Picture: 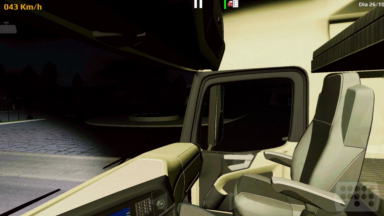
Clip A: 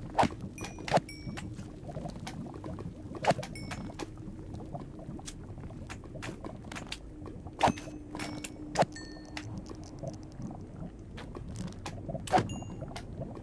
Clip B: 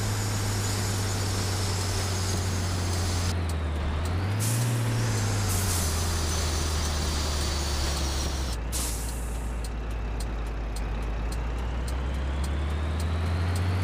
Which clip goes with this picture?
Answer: B